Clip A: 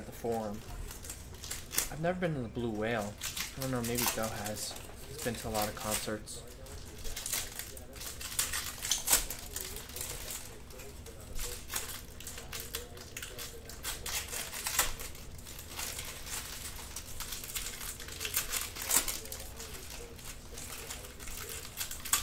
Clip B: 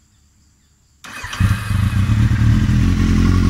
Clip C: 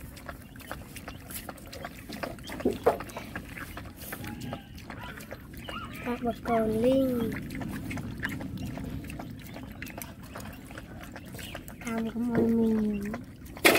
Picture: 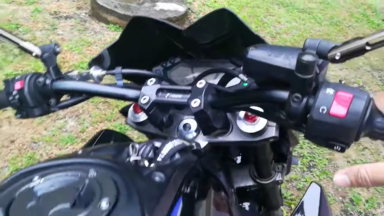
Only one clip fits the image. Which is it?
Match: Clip B